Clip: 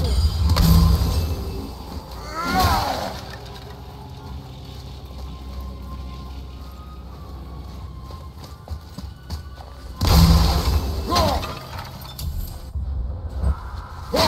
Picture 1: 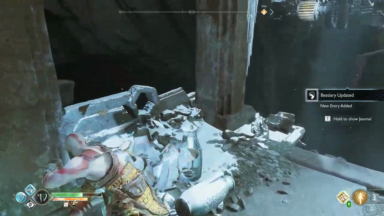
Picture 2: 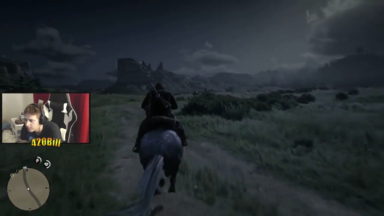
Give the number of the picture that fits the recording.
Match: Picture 1